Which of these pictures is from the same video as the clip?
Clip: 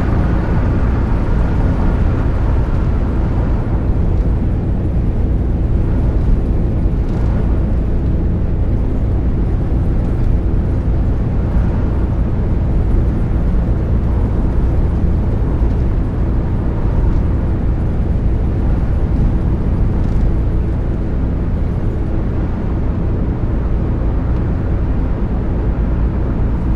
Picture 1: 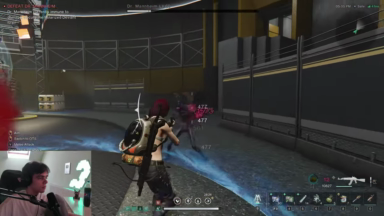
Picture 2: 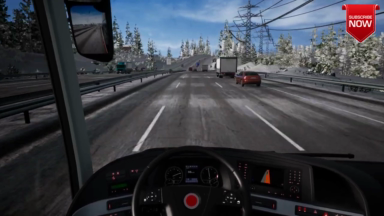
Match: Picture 2